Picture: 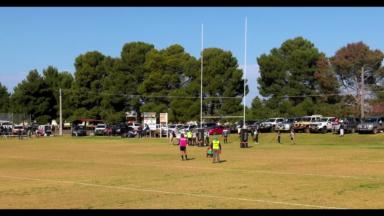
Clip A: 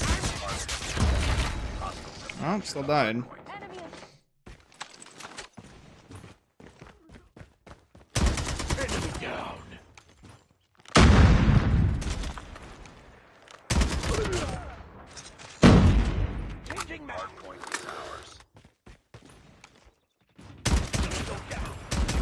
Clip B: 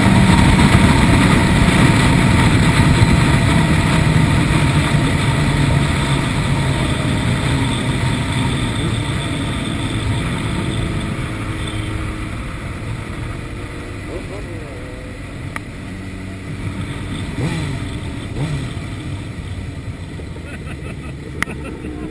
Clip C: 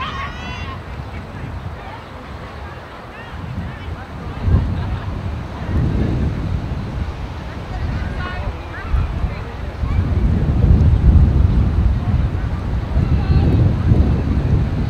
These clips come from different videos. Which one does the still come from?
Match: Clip C